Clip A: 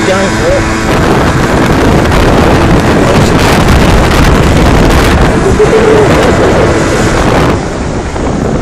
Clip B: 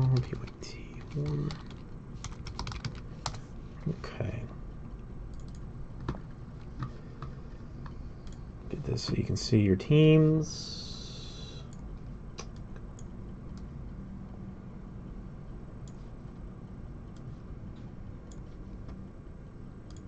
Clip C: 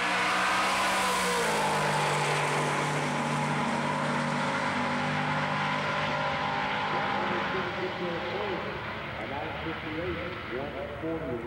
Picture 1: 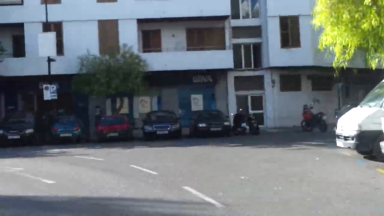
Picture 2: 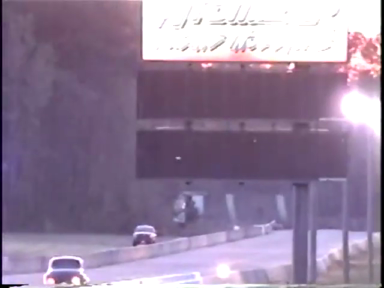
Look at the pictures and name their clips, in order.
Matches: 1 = A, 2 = C